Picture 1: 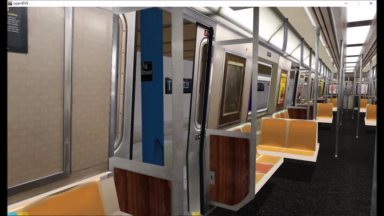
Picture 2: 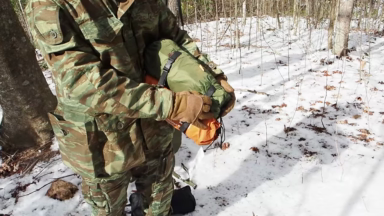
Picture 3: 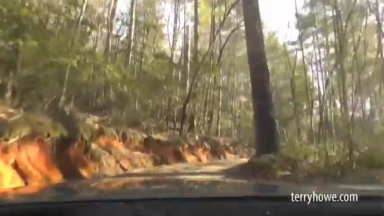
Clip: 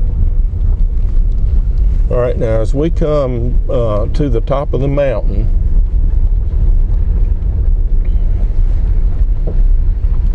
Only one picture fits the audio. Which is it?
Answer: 3